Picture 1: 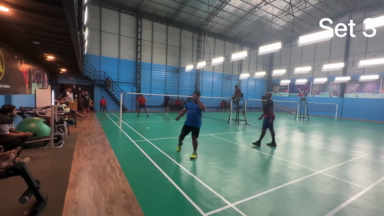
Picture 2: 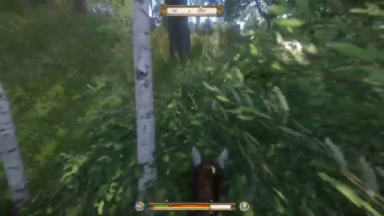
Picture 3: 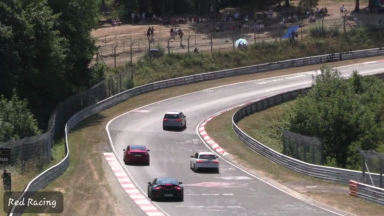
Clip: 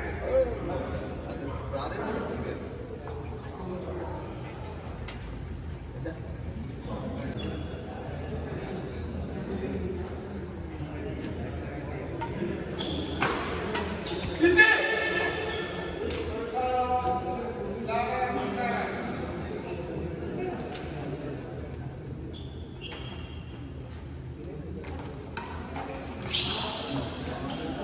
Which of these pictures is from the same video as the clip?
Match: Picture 1